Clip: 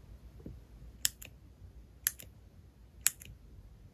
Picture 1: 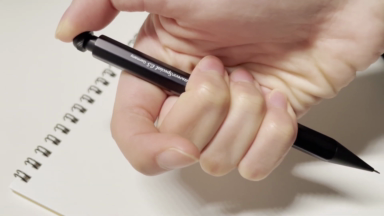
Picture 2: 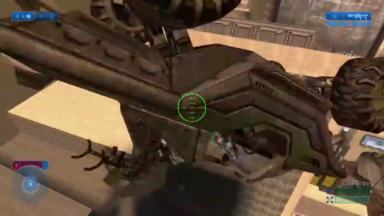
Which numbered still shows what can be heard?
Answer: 1